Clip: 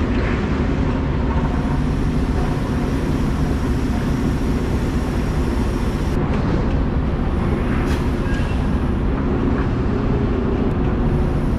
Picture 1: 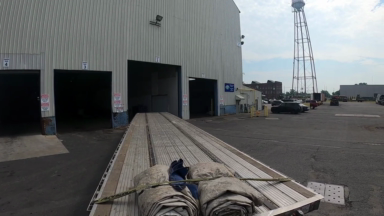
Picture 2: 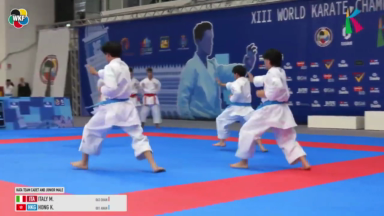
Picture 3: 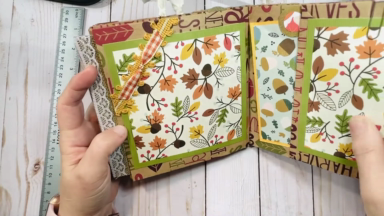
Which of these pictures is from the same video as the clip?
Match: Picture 1